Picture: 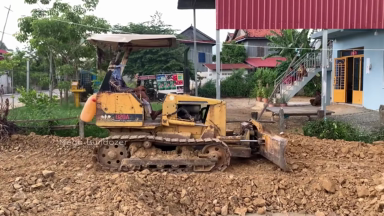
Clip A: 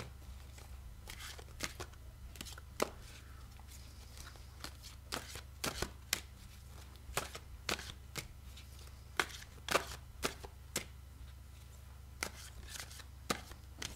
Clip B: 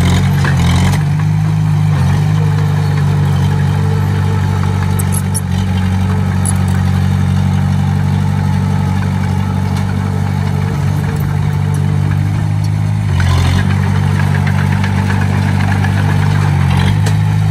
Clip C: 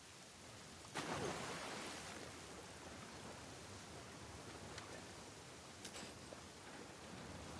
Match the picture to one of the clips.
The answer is B